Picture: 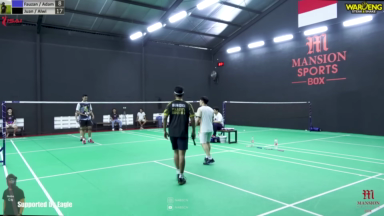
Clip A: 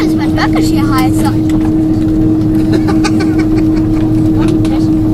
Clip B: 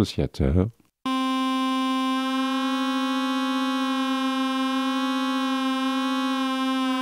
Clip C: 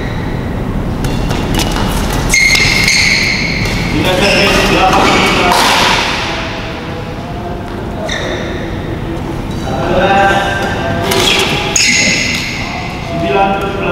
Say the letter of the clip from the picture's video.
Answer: C